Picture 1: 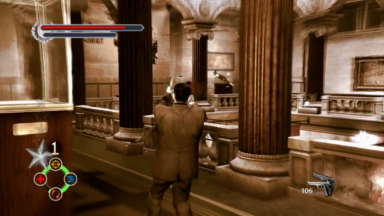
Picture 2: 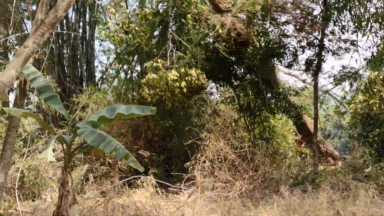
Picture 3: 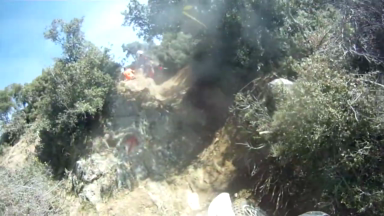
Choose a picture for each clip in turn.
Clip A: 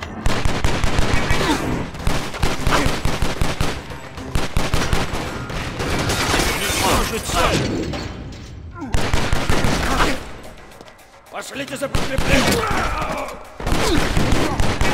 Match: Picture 1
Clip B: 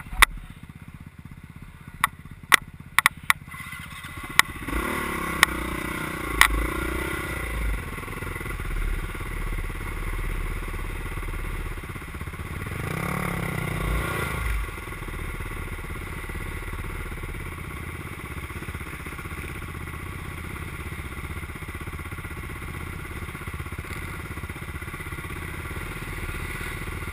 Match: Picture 3